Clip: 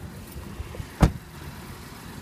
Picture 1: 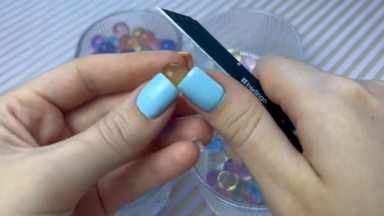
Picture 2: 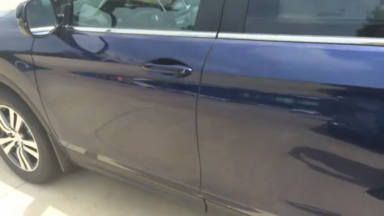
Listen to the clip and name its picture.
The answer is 2